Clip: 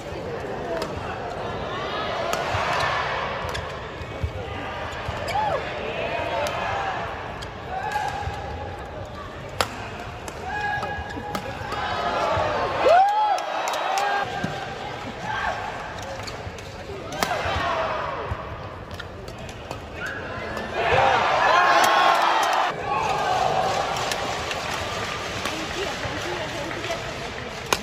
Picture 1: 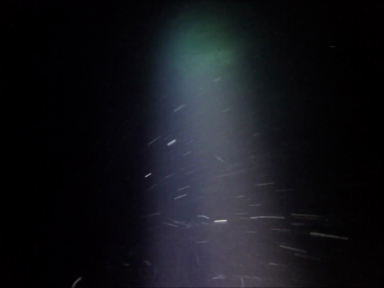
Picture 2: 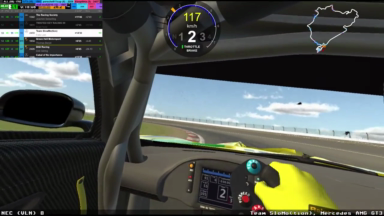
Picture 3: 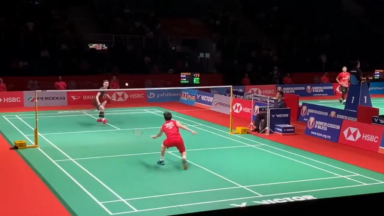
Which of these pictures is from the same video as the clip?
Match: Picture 3